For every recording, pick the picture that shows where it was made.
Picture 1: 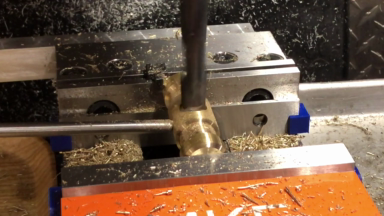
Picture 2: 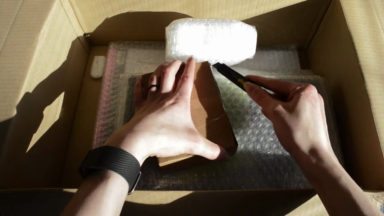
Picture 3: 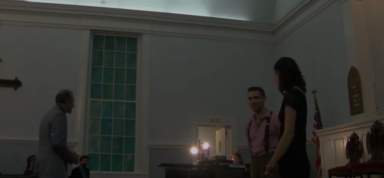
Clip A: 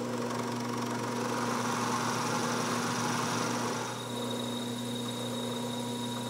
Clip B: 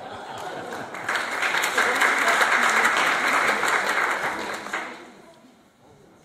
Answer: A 1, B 3